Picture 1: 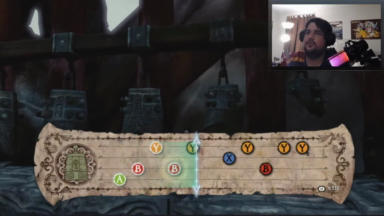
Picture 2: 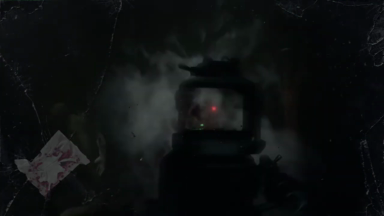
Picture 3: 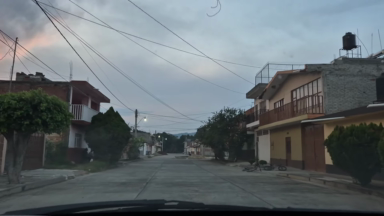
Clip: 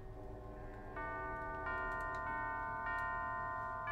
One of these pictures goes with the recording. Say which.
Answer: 1